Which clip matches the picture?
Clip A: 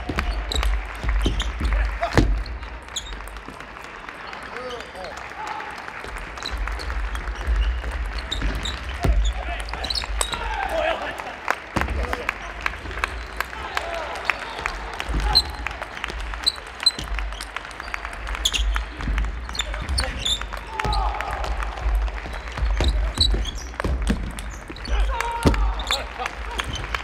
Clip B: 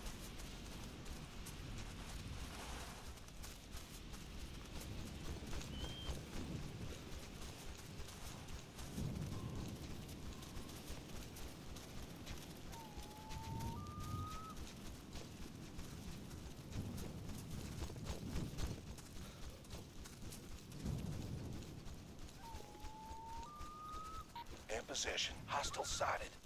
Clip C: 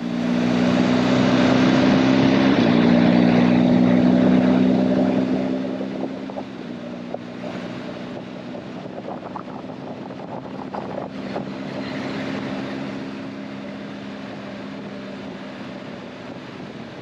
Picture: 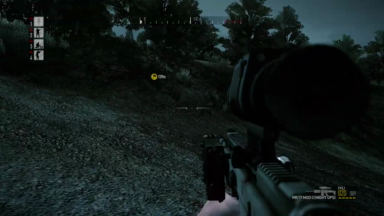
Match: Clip B